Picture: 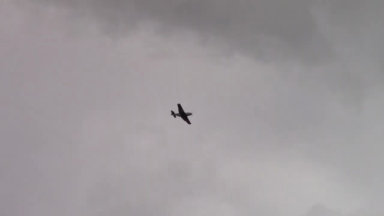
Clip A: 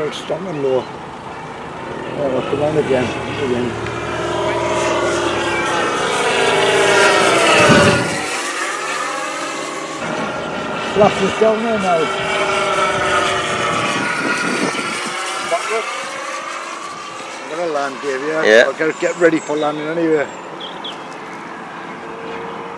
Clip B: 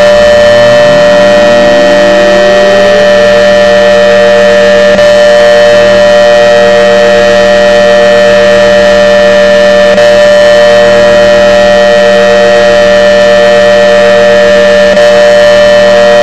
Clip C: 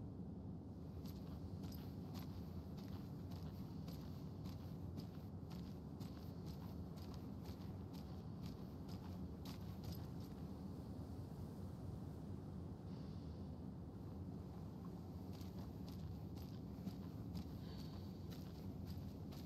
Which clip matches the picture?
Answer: A